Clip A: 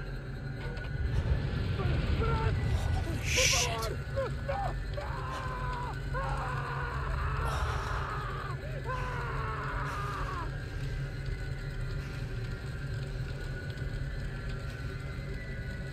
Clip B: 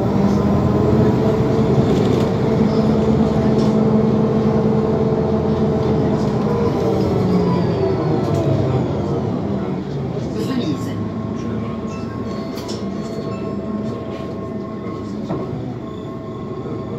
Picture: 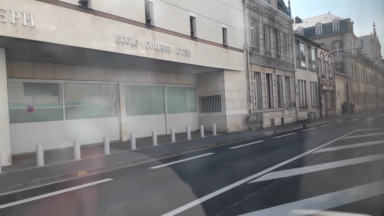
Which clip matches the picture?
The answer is B